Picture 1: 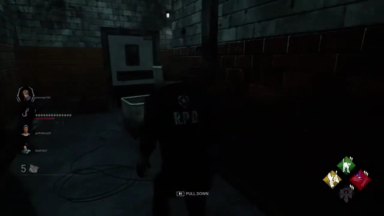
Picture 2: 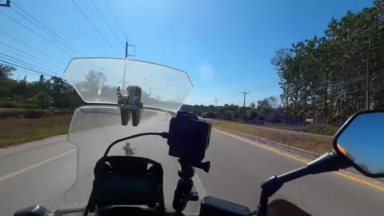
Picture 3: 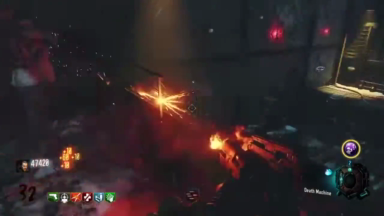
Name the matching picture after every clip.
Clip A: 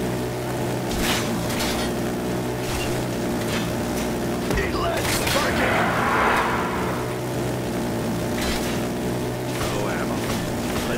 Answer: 3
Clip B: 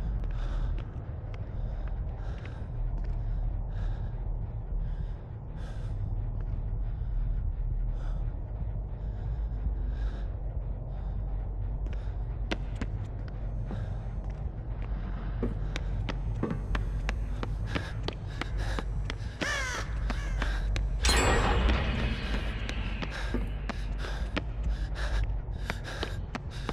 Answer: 1